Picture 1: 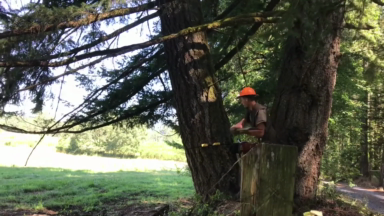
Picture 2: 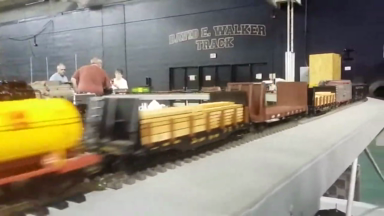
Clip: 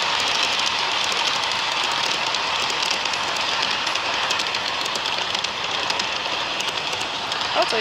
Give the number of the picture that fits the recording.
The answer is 2